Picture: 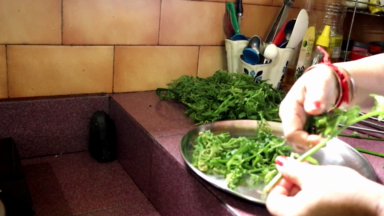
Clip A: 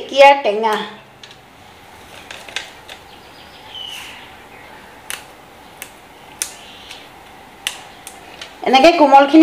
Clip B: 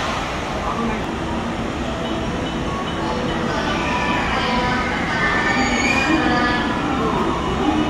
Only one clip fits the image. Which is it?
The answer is A